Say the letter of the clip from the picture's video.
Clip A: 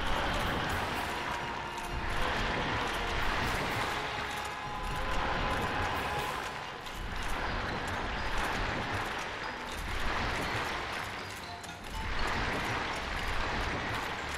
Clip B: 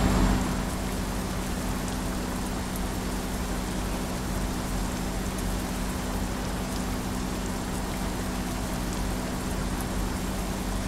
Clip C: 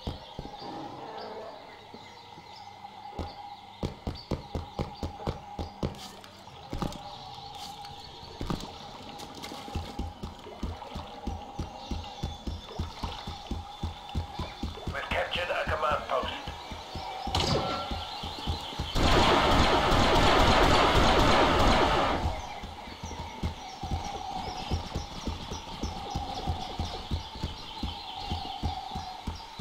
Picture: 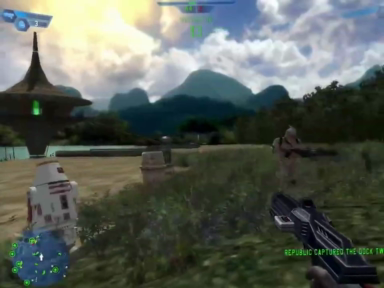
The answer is C